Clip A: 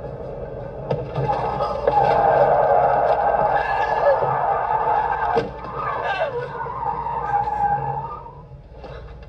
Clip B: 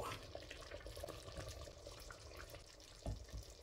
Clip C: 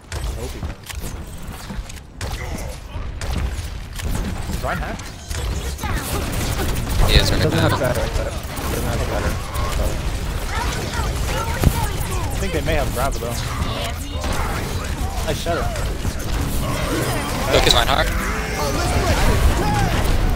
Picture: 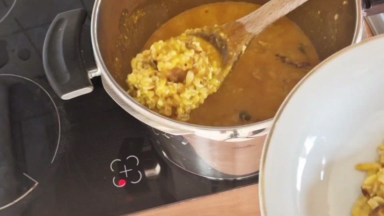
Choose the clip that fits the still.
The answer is B